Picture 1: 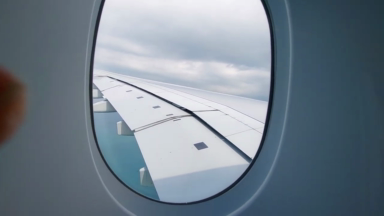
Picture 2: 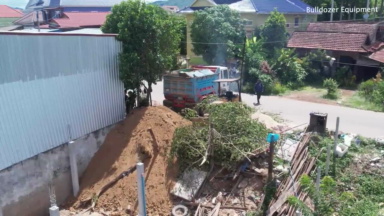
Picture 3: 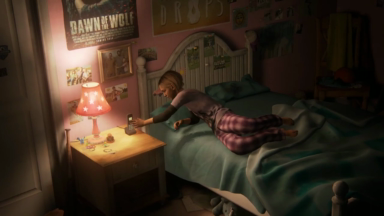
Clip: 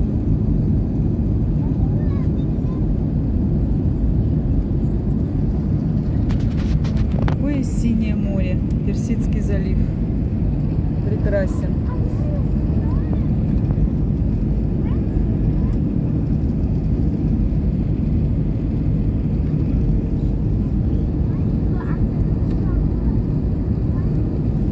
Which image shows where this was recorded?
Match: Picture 1